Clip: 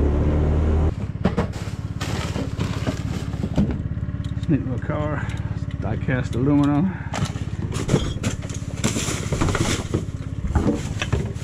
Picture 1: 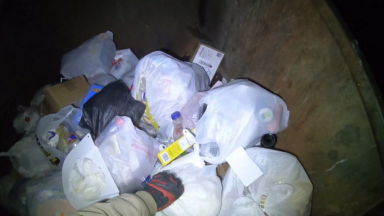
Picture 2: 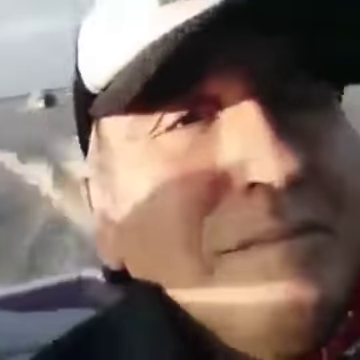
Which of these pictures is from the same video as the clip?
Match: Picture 1